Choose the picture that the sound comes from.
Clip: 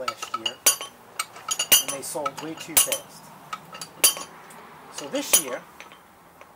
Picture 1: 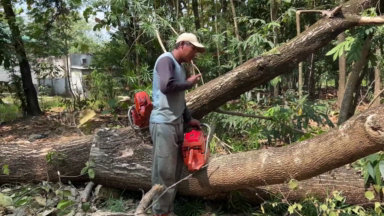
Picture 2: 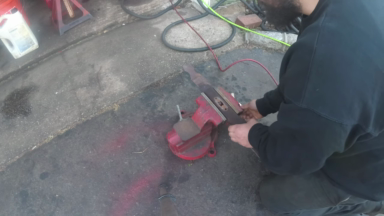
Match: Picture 2